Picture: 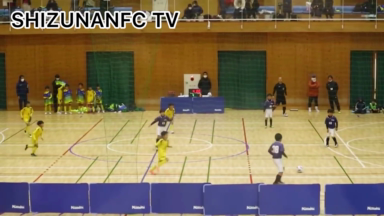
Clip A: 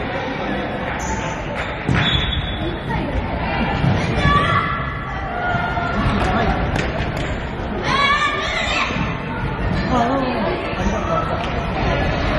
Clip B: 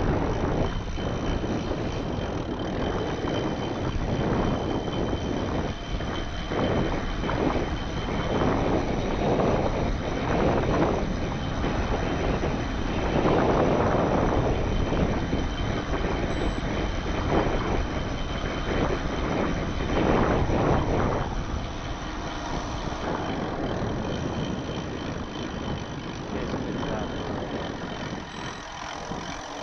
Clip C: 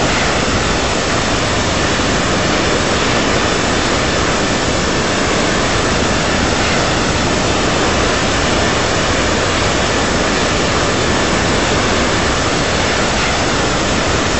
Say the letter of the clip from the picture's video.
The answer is A